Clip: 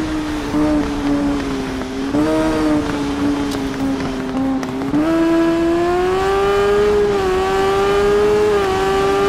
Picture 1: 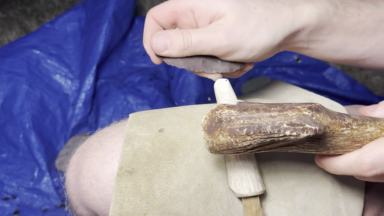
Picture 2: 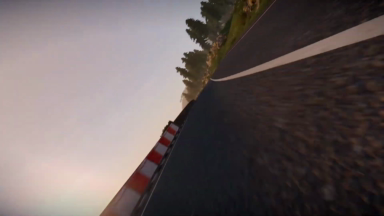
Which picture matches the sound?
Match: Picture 2